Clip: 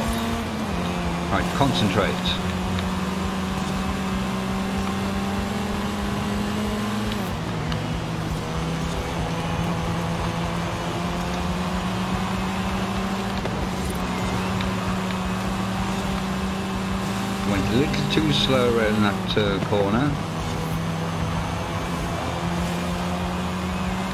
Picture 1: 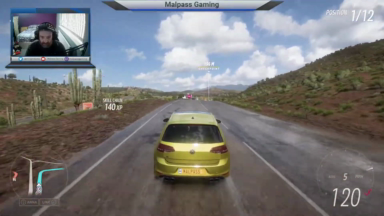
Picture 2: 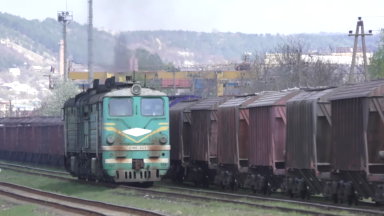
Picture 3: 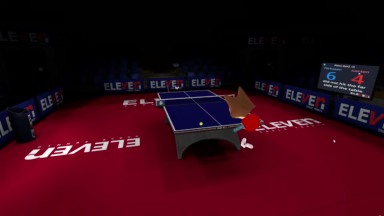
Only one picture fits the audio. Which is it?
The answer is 1